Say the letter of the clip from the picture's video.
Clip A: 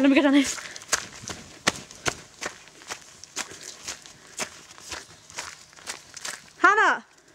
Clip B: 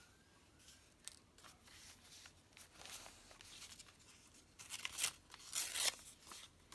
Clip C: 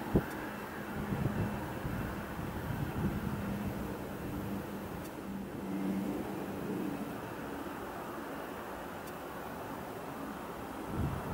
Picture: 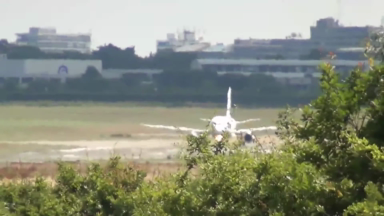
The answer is C